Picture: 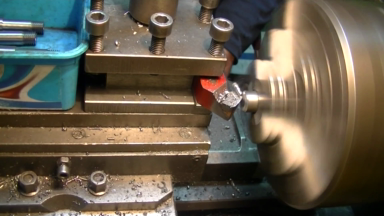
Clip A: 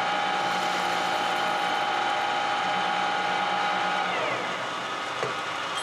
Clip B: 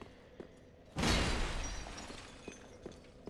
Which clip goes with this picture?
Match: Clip A